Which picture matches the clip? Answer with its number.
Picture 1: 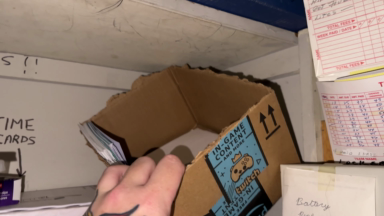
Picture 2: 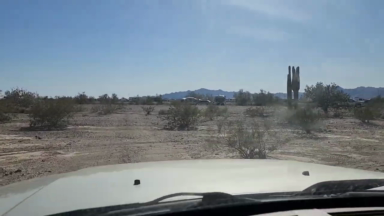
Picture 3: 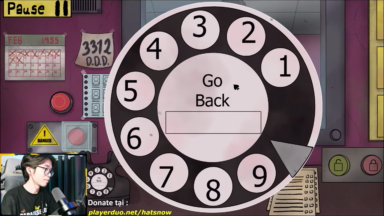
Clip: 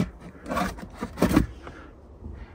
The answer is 1